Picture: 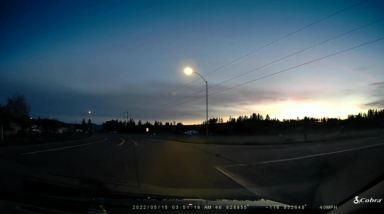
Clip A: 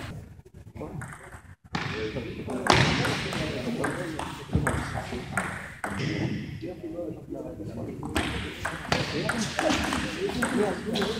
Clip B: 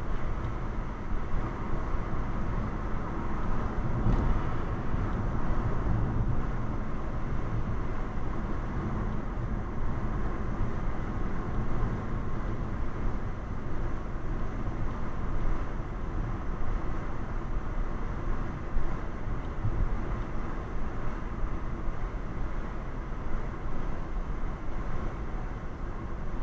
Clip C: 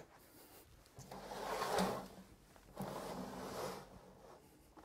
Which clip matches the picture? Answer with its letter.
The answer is B